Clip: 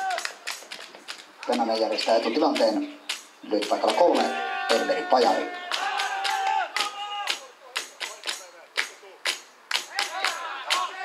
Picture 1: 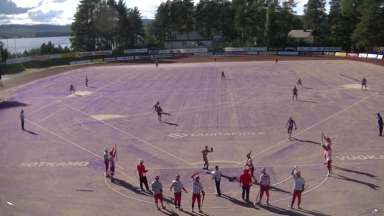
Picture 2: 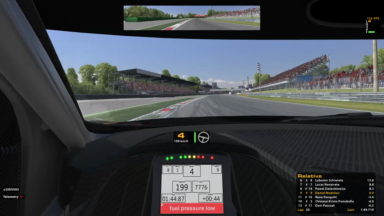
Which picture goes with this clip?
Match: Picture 1